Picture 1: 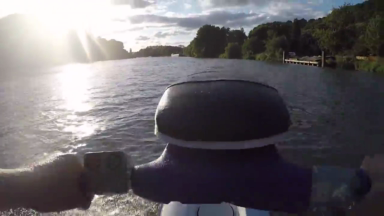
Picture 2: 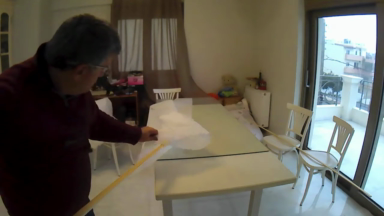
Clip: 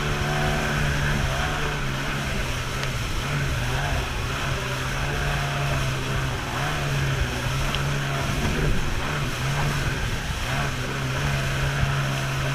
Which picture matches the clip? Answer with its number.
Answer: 1